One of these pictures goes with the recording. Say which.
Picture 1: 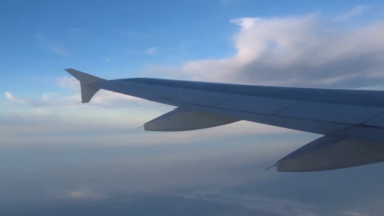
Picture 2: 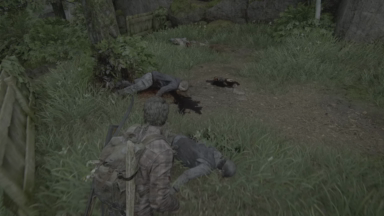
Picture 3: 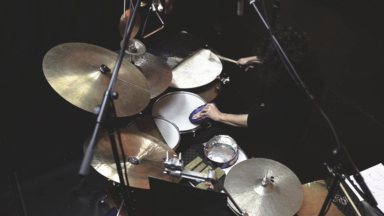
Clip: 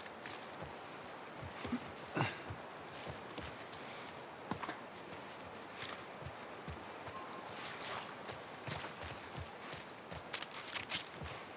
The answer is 2